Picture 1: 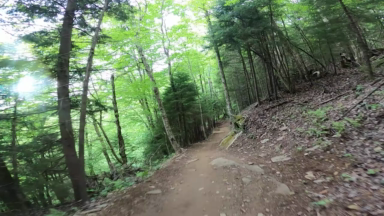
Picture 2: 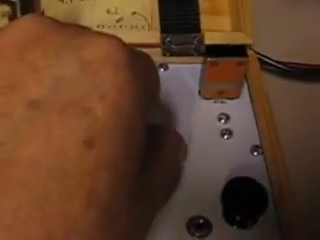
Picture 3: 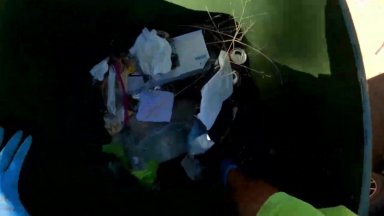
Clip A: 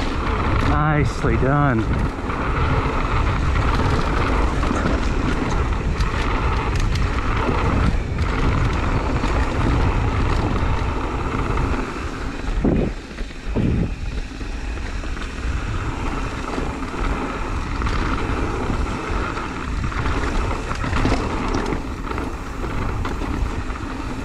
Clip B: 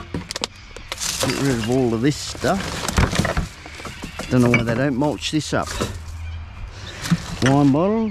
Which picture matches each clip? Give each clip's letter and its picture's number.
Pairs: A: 1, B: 3